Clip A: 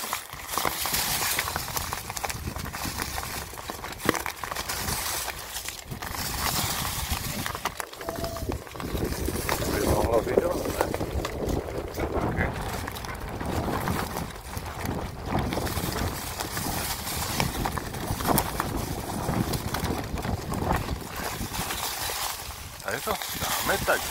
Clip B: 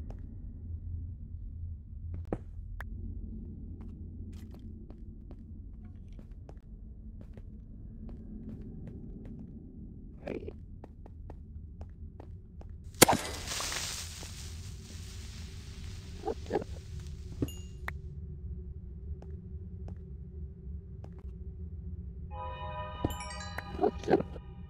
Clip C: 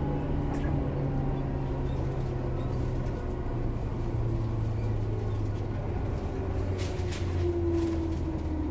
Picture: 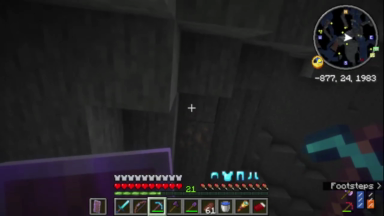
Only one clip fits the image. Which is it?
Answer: B